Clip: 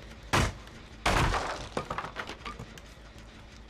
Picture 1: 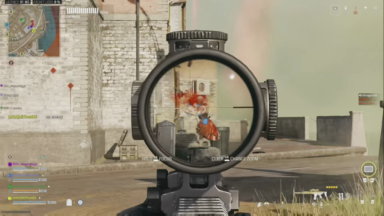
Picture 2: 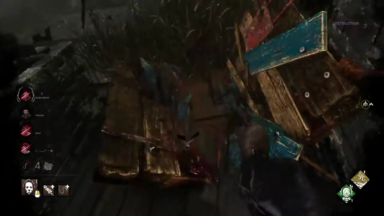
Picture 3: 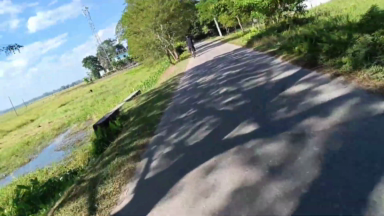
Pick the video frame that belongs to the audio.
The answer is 2